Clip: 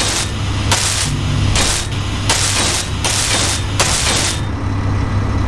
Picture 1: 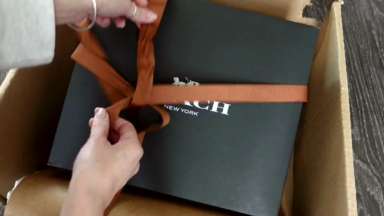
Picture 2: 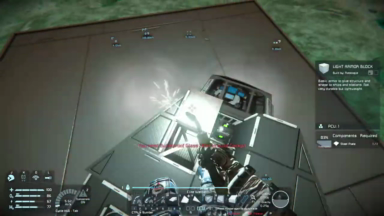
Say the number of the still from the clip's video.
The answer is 2